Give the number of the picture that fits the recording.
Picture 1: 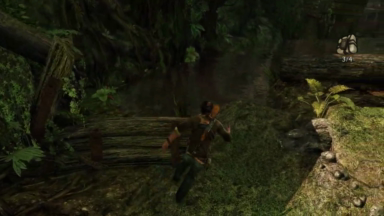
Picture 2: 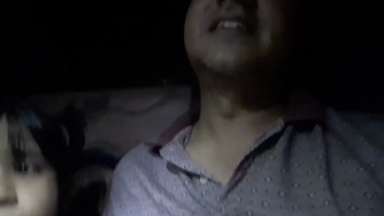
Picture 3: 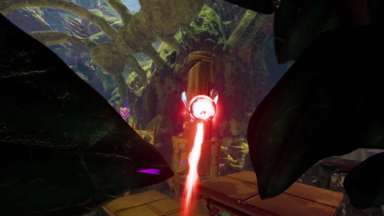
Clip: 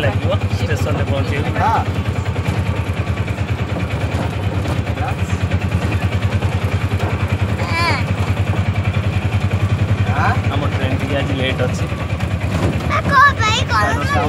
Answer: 2